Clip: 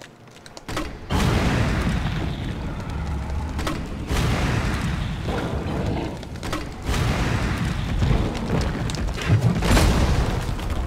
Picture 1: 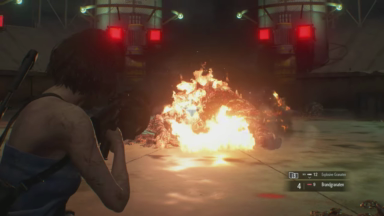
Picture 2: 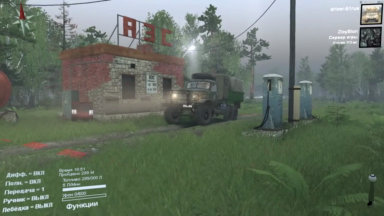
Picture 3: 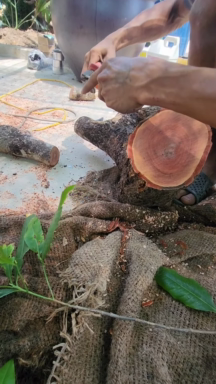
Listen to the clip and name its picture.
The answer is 1